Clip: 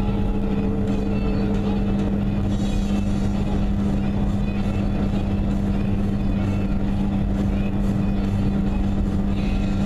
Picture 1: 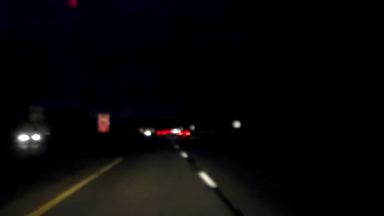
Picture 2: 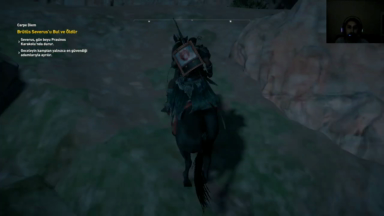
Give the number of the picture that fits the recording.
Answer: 1